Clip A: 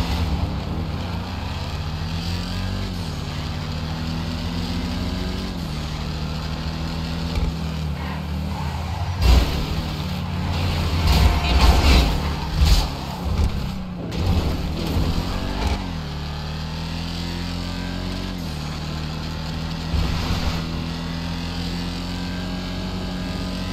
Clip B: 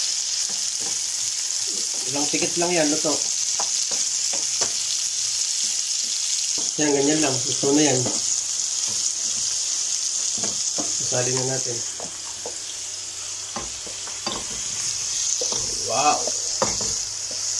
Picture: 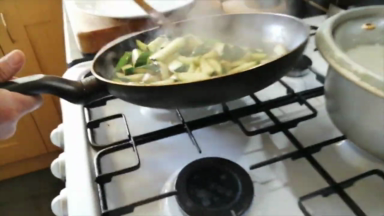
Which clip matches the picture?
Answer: B